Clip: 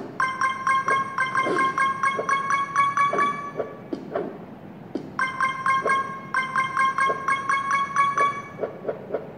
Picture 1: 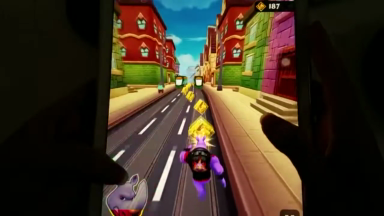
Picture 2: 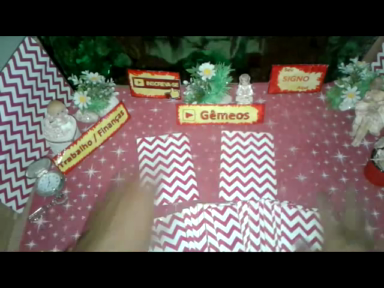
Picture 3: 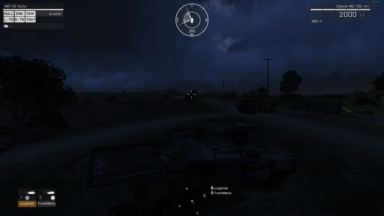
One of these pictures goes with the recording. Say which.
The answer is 1